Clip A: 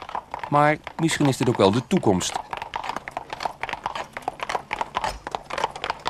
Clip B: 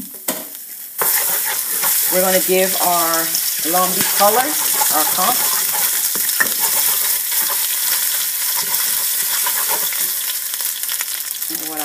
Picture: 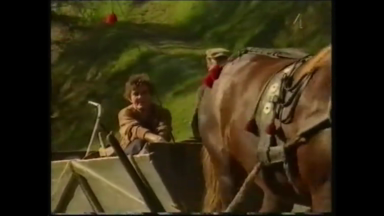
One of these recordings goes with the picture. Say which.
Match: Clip A